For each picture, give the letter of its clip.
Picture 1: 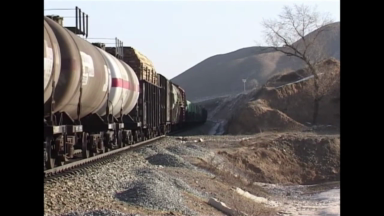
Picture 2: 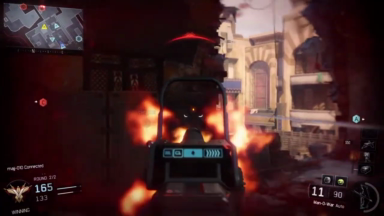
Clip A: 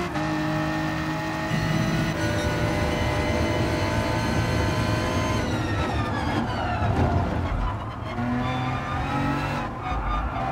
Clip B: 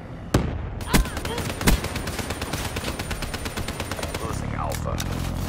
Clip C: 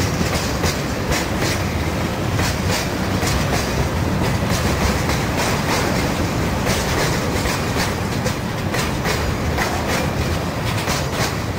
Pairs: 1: C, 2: B